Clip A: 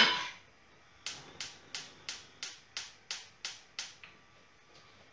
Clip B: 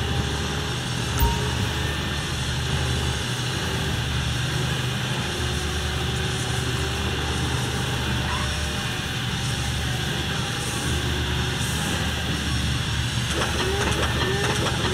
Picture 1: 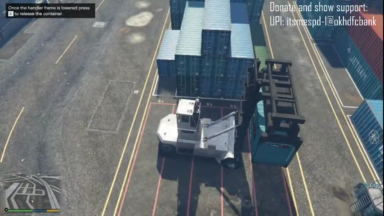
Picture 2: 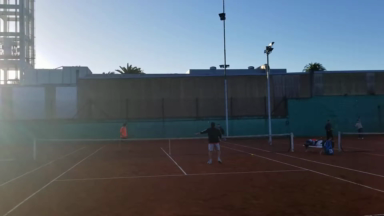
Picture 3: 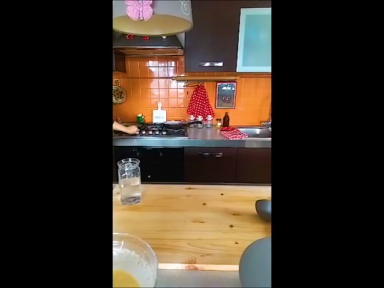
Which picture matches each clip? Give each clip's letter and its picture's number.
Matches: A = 3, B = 1